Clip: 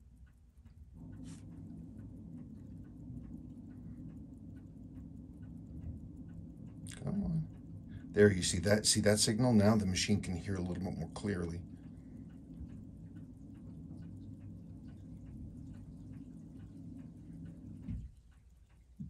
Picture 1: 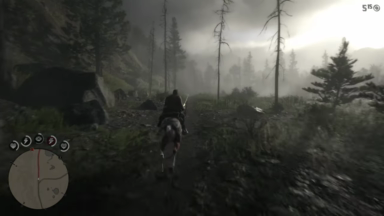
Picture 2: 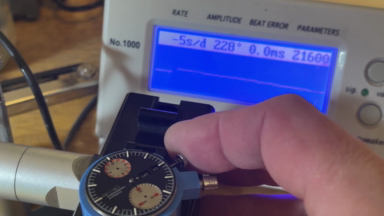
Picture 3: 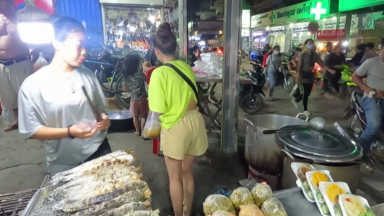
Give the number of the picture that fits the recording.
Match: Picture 2